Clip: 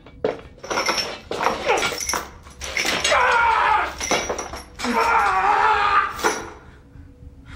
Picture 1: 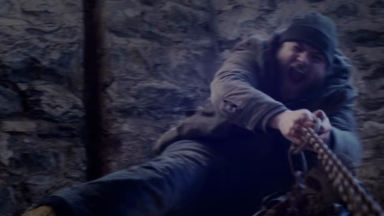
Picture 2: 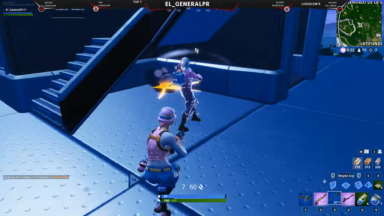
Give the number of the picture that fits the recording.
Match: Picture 1